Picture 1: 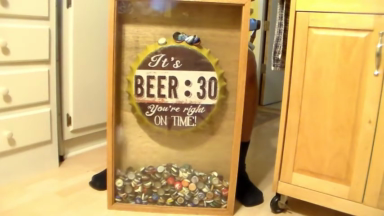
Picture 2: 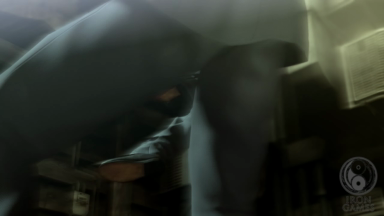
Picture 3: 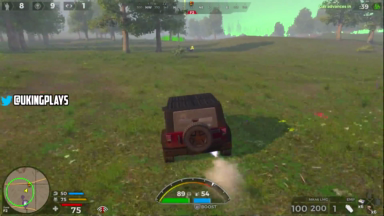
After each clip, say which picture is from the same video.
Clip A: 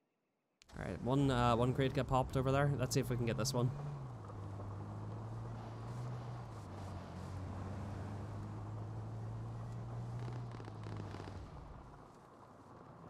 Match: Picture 3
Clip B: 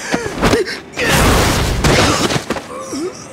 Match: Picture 2